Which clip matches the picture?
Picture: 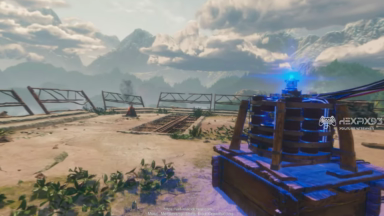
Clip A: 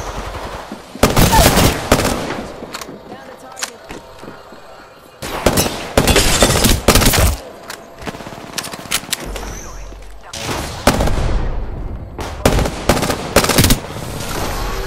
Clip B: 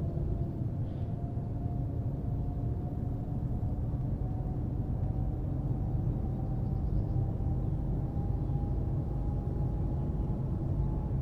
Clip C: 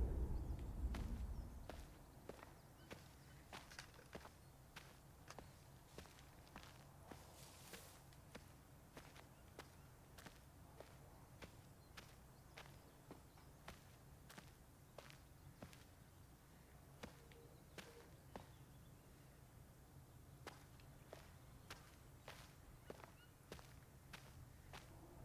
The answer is C